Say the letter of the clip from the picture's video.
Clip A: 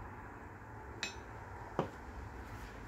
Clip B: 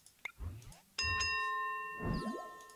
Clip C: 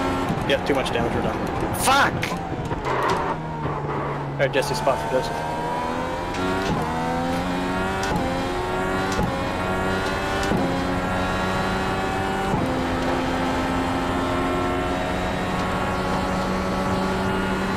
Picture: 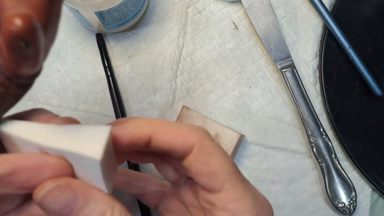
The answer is A